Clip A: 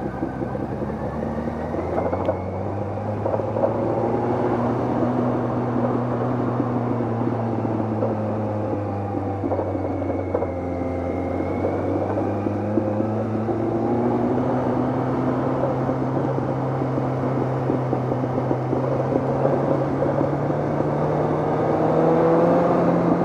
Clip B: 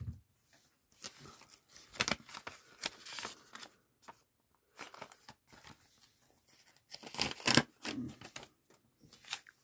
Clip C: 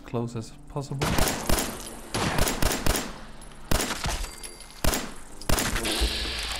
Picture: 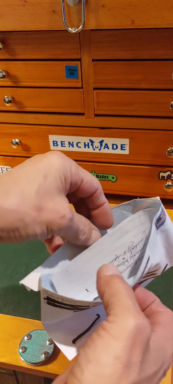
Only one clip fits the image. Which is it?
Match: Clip B